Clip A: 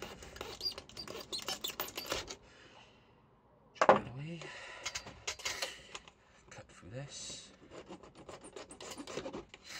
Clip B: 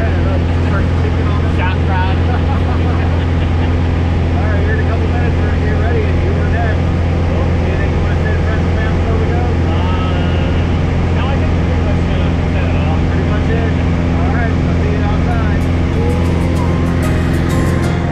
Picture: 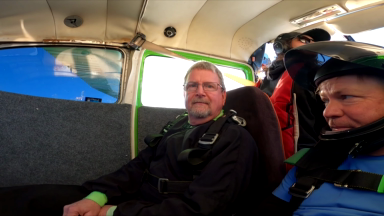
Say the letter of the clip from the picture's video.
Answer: B